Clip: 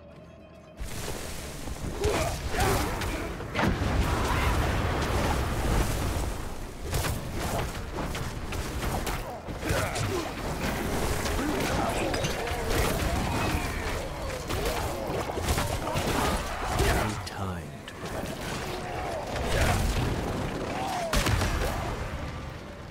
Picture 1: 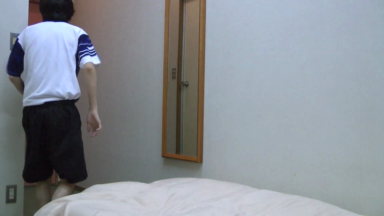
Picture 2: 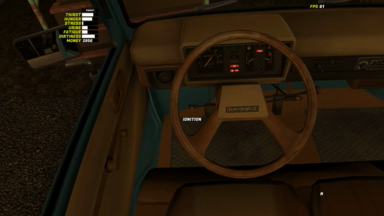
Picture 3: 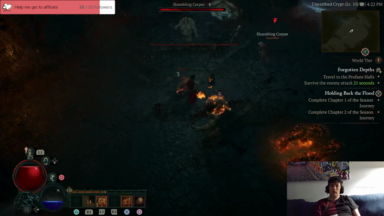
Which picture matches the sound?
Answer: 3